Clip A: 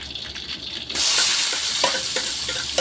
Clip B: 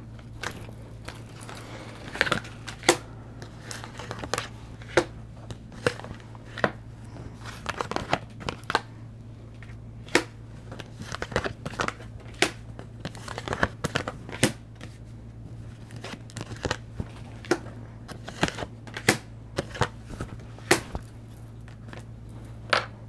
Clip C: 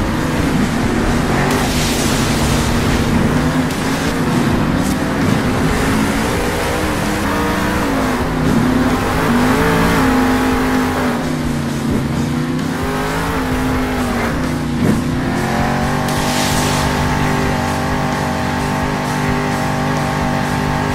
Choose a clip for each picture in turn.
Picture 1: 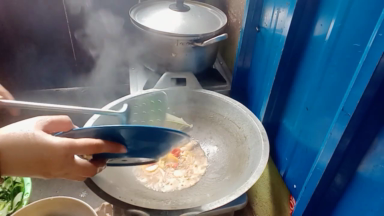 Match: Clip A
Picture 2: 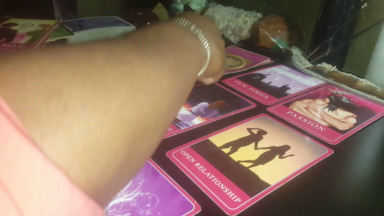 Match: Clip B